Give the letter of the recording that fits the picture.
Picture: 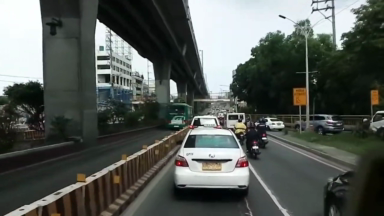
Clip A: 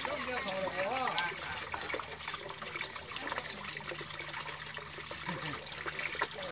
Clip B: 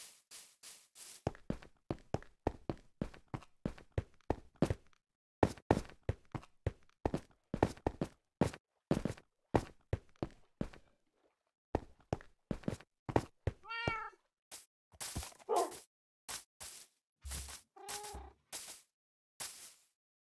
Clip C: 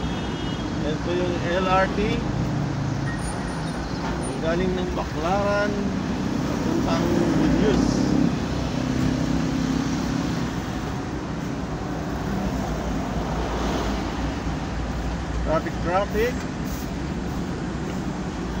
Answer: C